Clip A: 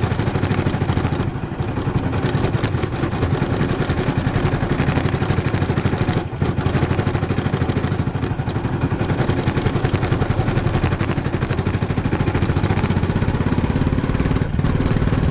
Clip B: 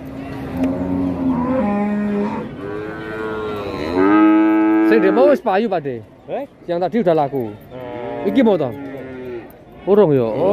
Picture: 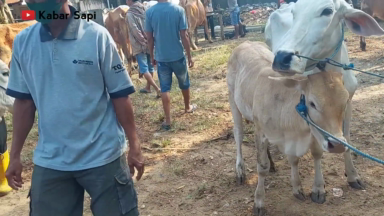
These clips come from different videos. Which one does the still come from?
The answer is B